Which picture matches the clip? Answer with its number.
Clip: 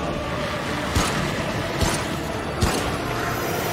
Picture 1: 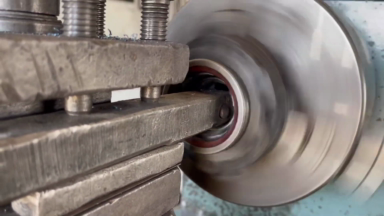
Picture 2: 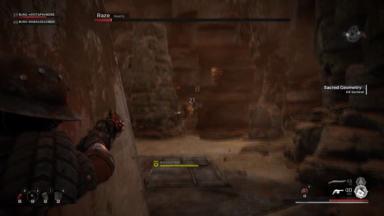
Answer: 2